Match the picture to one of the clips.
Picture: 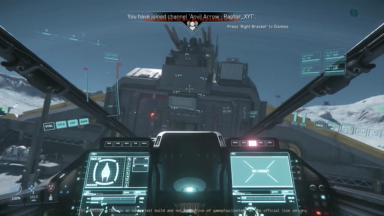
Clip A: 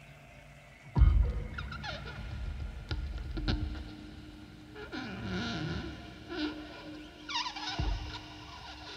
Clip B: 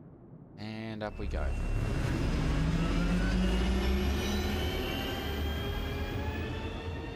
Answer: B